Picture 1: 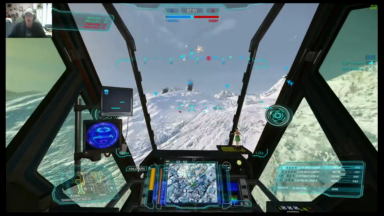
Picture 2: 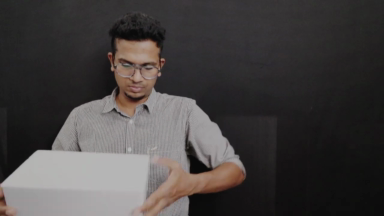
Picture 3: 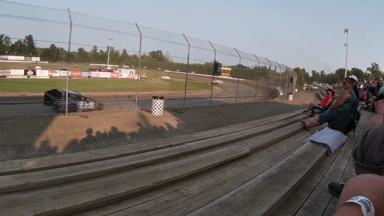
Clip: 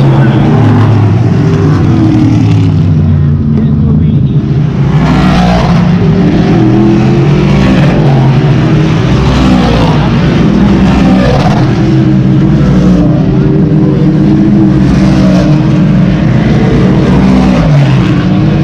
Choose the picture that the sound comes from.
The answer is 3